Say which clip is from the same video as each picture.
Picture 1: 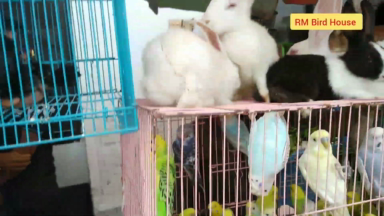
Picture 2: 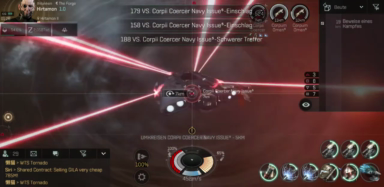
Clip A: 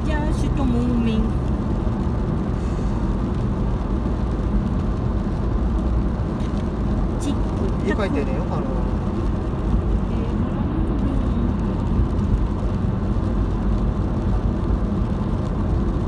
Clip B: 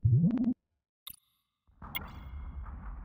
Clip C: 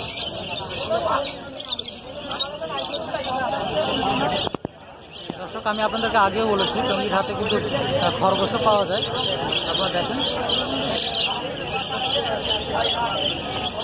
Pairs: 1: C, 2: B